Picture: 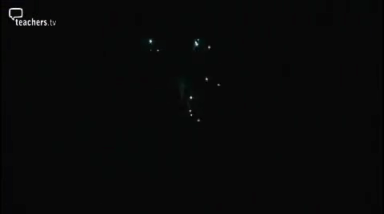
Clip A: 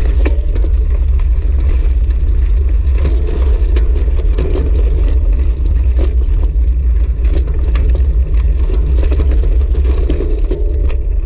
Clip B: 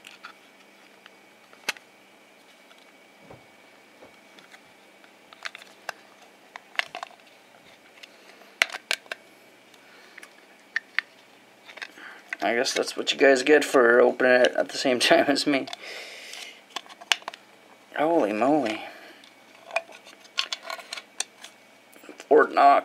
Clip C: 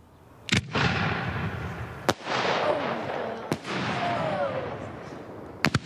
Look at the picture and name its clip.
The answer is C